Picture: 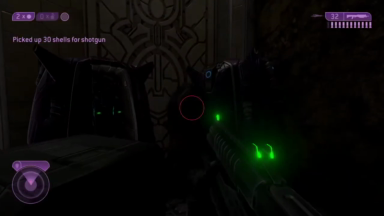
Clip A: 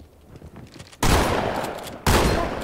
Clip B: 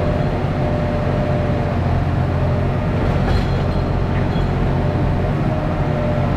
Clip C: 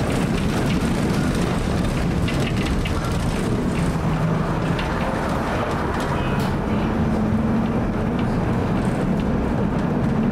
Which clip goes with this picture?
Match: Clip A